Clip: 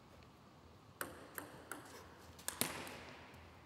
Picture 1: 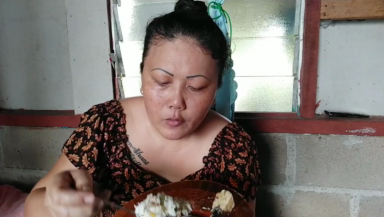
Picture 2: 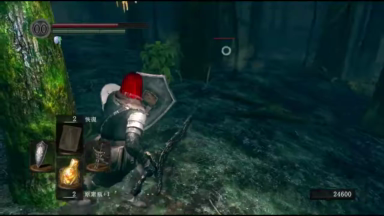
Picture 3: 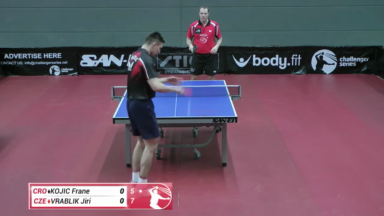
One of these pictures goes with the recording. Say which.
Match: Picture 3